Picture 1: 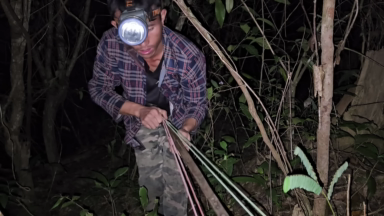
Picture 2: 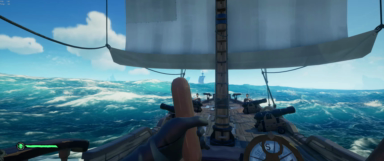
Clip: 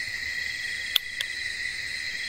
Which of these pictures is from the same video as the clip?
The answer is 1